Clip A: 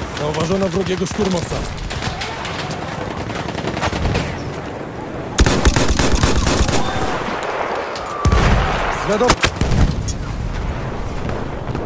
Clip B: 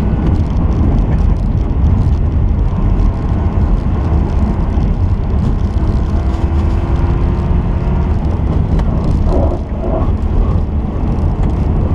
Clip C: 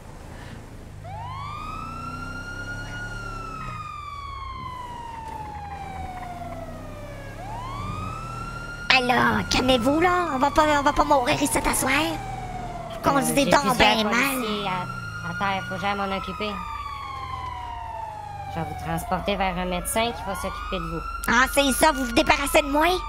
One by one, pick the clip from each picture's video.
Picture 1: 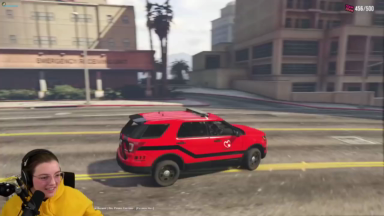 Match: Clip C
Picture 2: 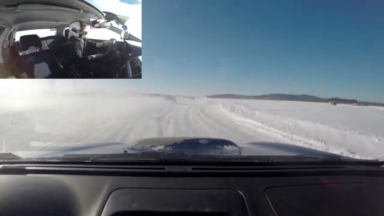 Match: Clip B